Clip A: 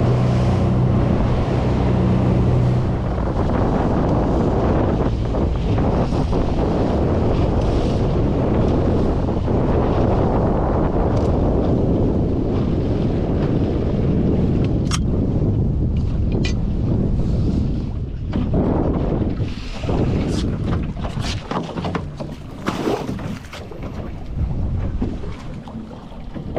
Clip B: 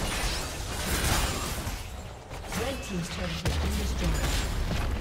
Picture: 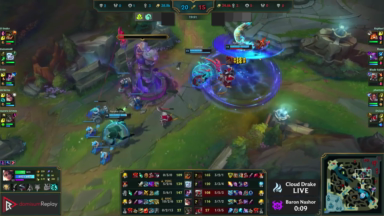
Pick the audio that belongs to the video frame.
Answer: B